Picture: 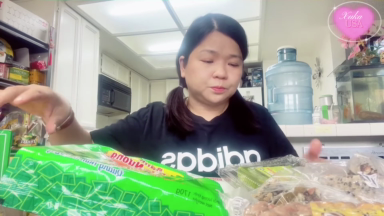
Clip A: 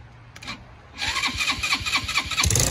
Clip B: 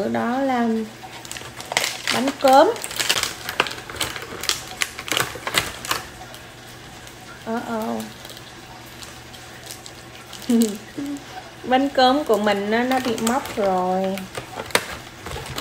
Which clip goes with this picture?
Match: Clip B